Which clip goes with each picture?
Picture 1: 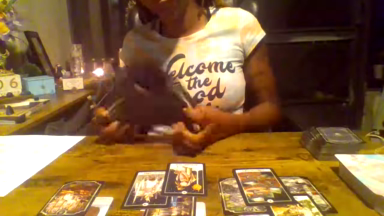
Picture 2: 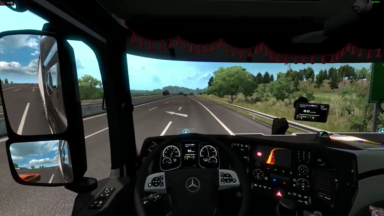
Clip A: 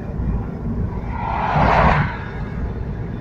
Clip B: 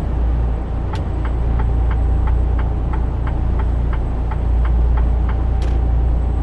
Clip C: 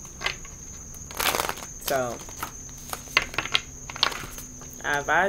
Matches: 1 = C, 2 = B